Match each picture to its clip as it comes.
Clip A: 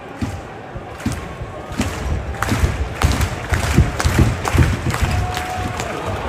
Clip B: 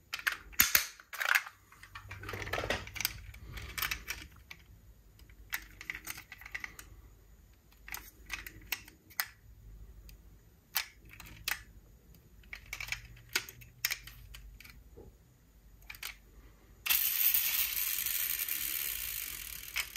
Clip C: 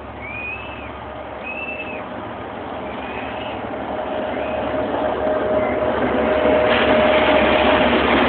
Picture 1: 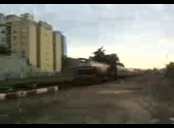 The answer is C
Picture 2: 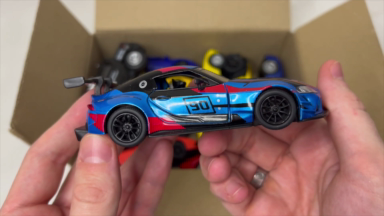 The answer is B